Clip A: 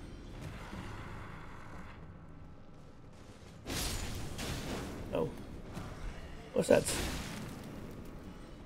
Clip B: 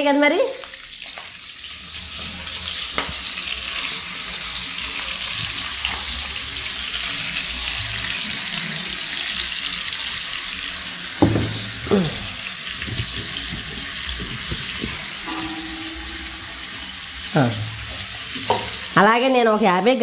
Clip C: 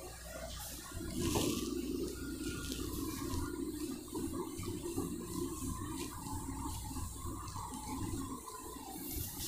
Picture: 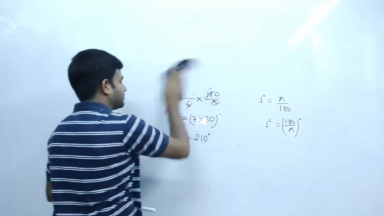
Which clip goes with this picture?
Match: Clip C